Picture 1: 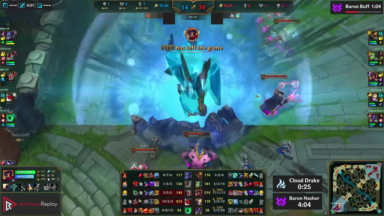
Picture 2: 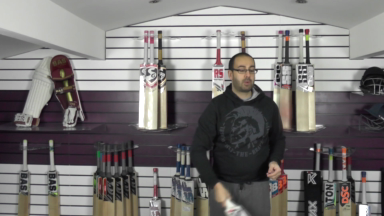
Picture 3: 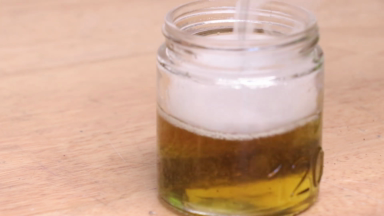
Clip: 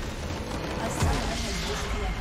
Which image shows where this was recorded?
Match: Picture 1